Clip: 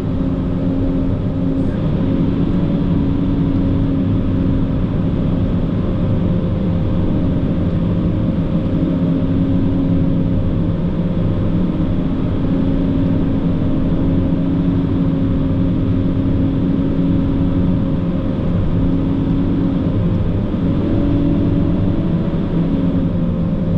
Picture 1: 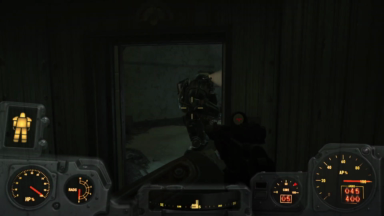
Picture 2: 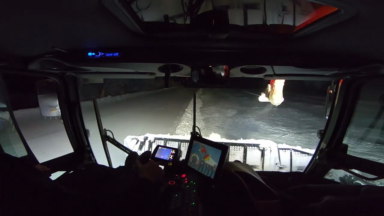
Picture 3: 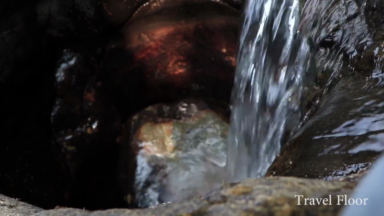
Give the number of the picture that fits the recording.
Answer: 2